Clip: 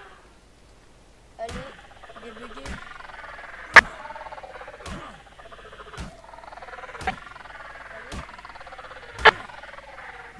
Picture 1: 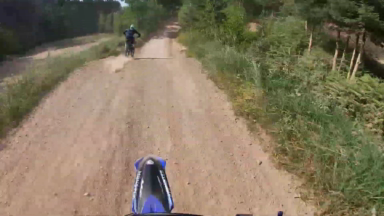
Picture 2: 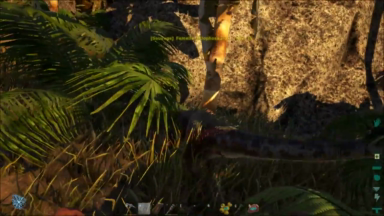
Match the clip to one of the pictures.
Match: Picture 2